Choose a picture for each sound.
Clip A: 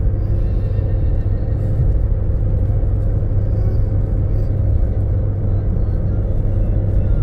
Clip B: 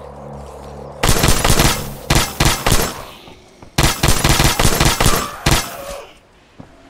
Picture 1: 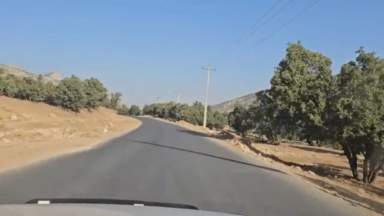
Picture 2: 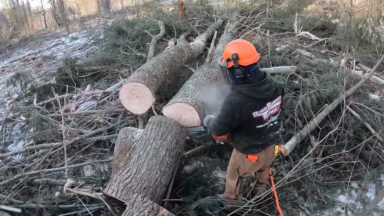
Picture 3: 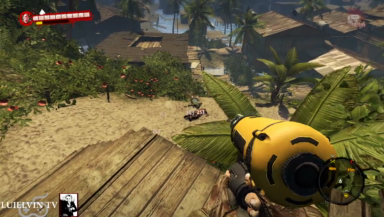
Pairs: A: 1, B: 3